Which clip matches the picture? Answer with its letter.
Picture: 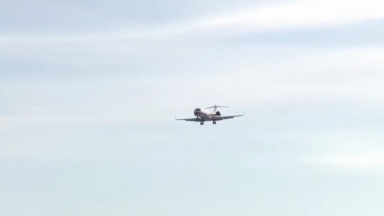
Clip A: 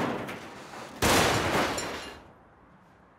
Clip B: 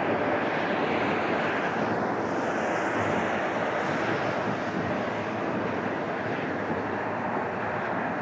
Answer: B